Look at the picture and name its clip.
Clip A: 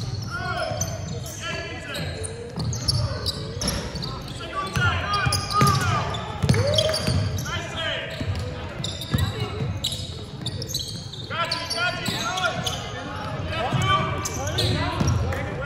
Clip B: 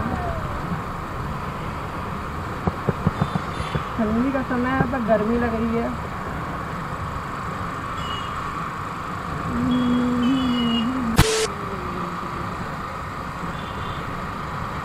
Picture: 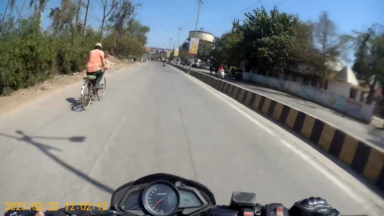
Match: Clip B